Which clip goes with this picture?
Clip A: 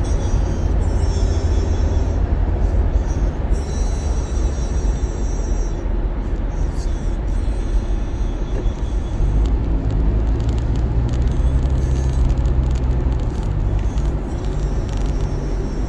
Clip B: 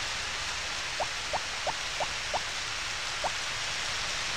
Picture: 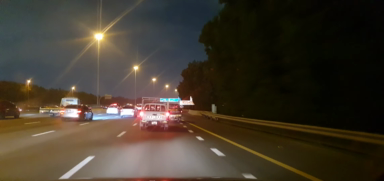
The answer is A